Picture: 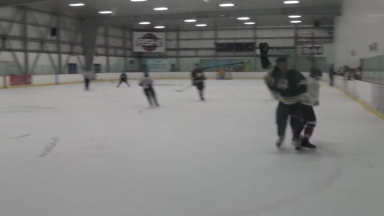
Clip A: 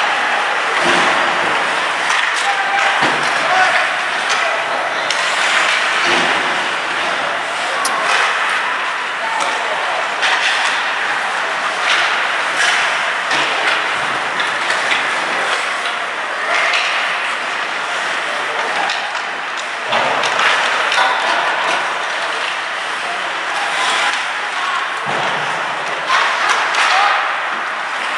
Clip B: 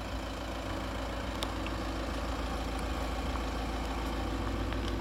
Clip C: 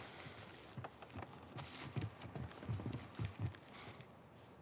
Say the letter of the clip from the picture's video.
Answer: A